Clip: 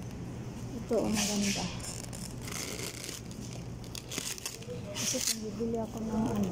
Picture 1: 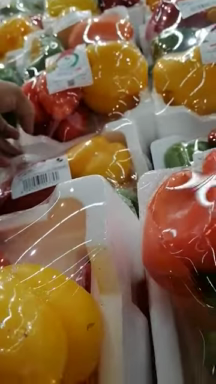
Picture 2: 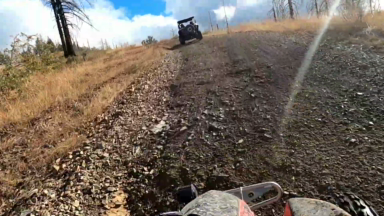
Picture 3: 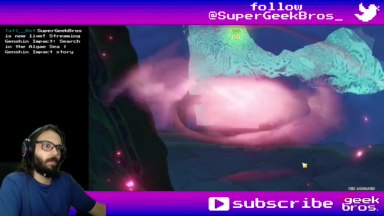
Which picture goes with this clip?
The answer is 1